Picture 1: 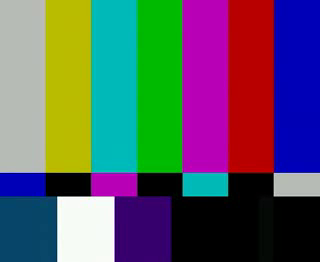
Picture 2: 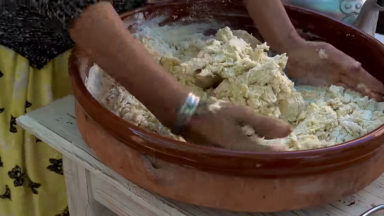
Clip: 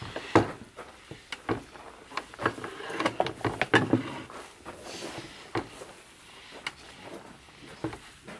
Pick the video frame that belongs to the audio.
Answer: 2